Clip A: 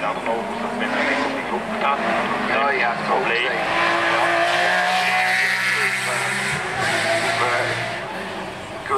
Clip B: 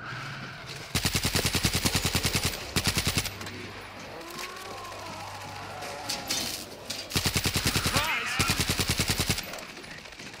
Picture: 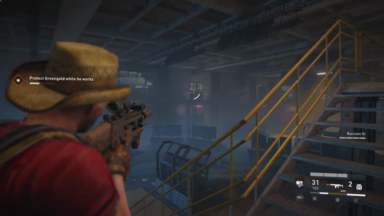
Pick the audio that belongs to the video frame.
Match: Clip B